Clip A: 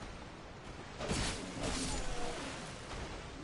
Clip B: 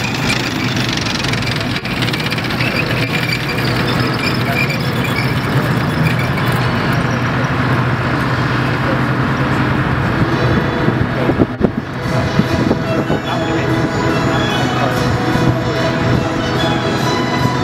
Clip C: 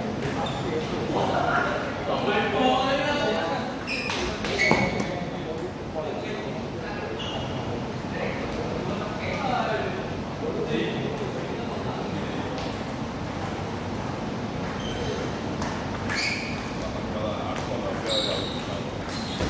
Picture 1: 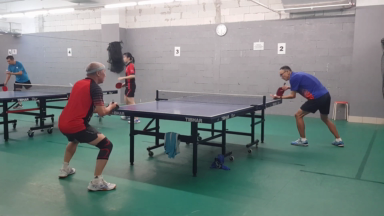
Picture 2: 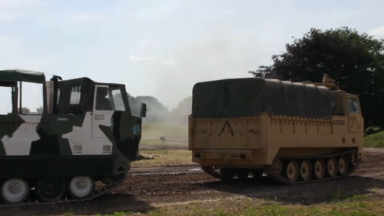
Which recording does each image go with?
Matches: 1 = C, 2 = B